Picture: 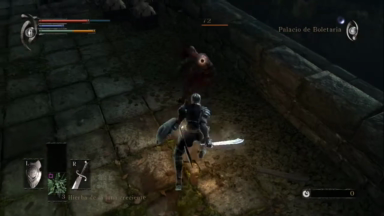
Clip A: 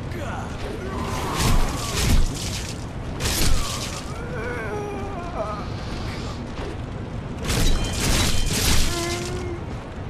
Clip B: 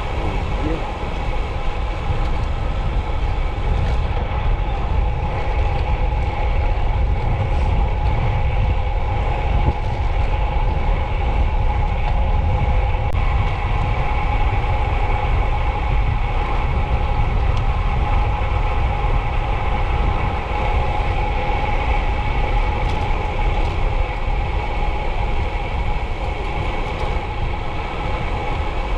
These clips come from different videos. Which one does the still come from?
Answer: A